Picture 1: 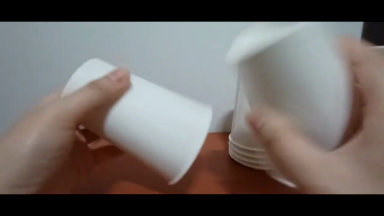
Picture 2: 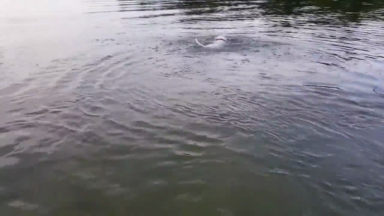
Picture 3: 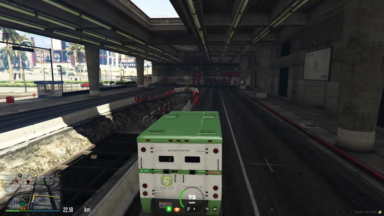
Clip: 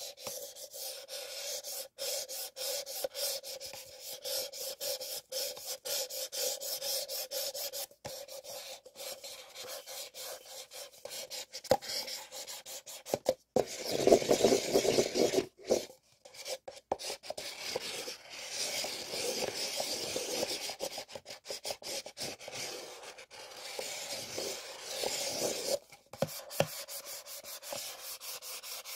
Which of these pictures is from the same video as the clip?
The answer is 1